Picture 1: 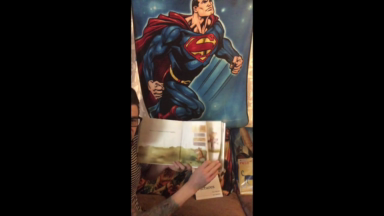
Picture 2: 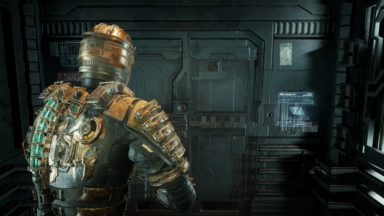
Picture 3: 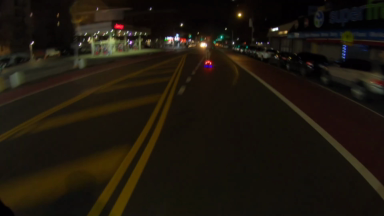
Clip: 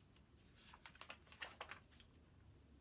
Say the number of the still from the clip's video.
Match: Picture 1